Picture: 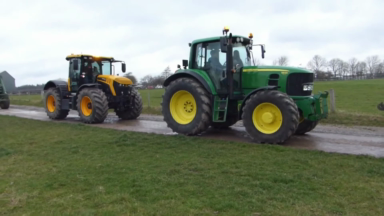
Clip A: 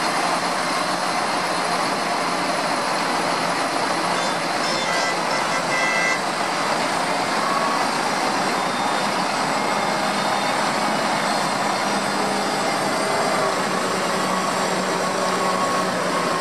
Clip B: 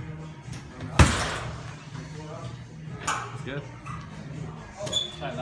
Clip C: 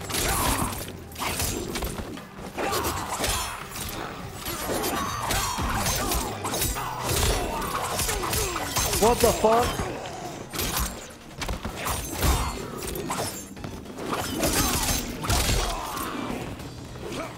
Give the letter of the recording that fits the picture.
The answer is A